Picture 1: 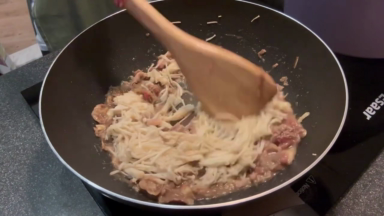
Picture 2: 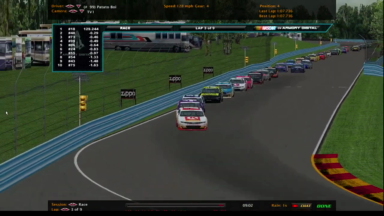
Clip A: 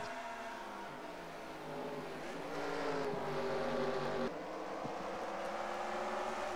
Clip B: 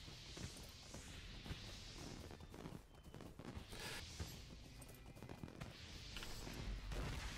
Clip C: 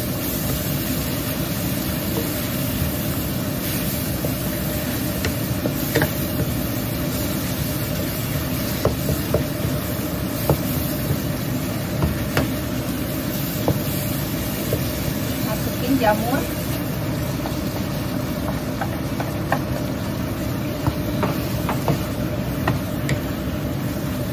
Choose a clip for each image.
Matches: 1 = C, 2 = A